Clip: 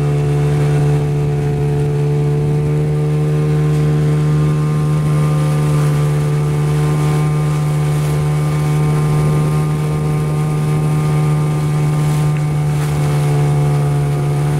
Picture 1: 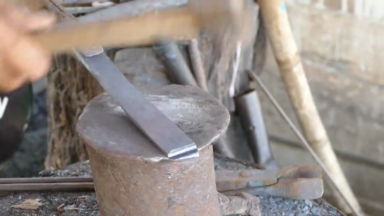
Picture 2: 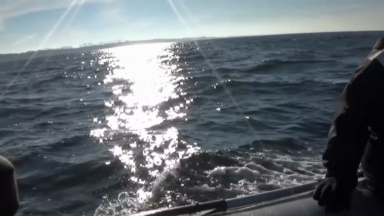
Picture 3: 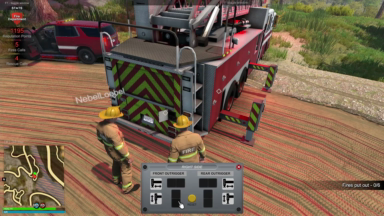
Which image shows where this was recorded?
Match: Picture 2